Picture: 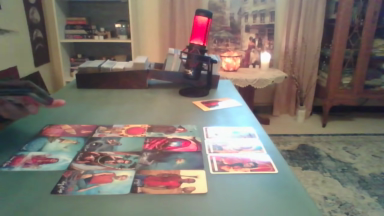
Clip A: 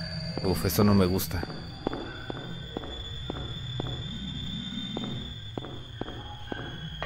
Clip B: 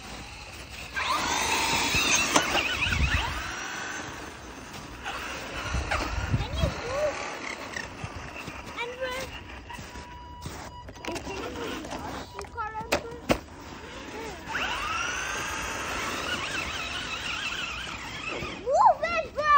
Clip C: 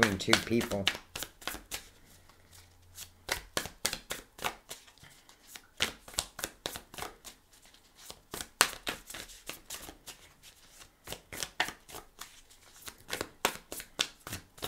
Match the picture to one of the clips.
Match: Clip C